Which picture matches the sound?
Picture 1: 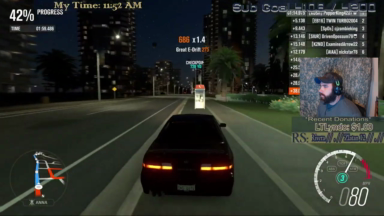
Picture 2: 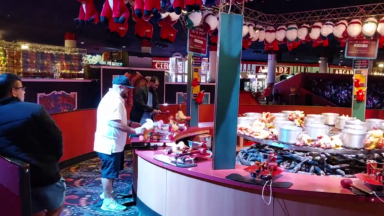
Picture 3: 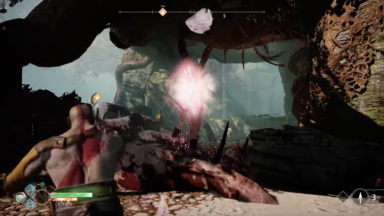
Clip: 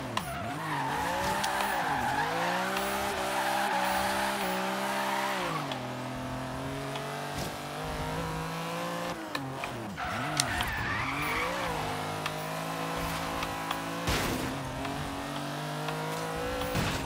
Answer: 1